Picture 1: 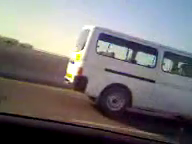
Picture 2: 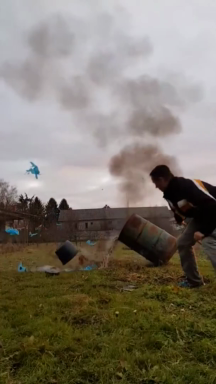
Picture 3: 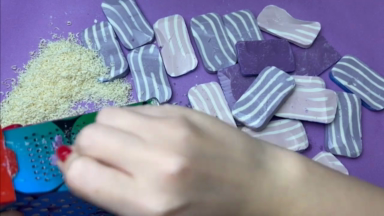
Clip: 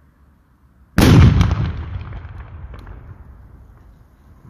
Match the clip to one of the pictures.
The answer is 2